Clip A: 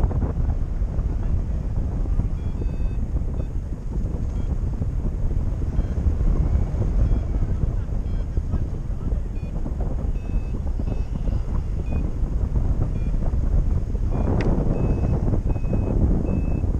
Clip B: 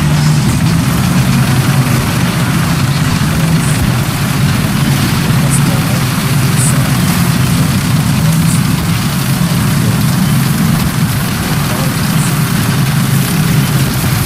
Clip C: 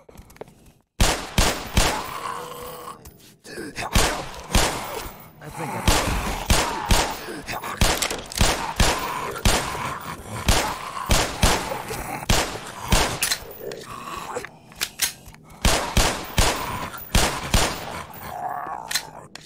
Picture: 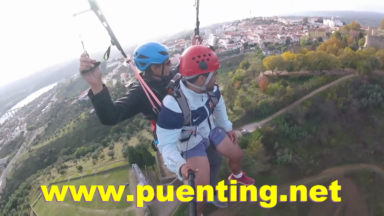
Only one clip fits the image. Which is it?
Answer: A